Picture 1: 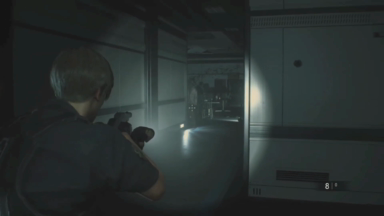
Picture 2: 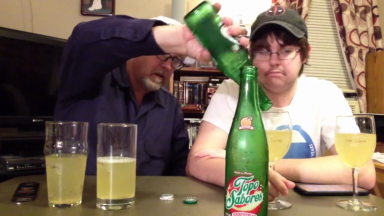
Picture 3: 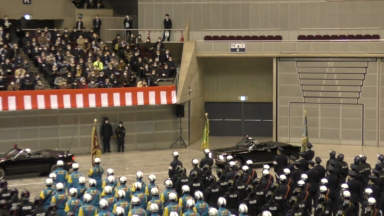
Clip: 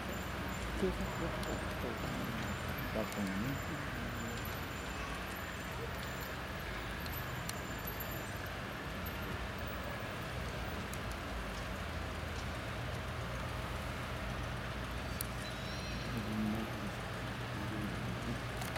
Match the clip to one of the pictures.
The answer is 3